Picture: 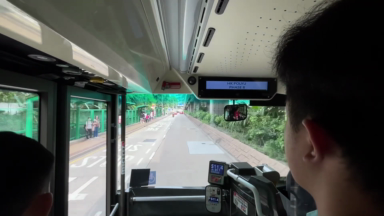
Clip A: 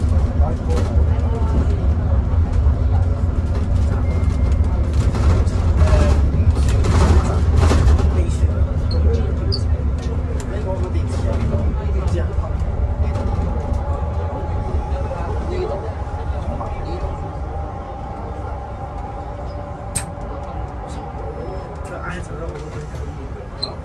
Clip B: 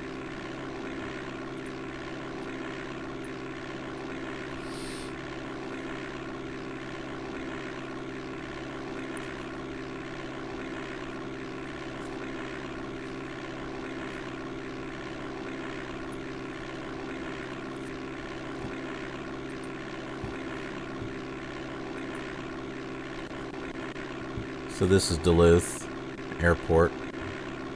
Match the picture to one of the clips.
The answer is A